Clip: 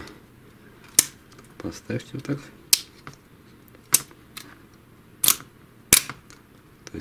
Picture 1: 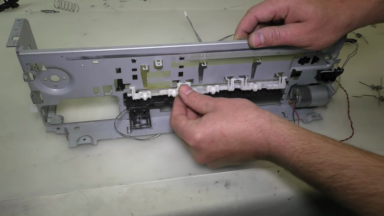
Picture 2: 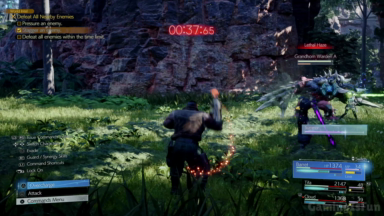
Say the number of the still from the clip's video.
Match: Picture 1